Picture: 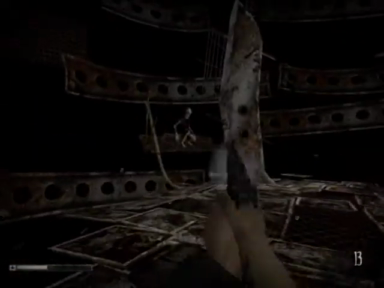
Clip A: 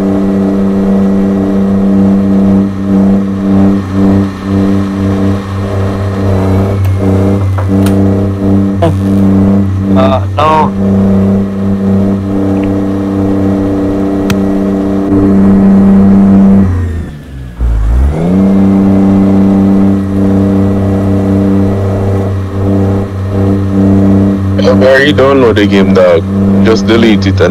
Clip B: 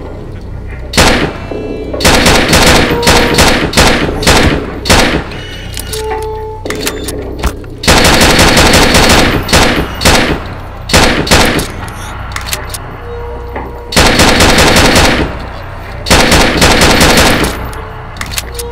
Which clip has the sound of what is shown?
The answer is B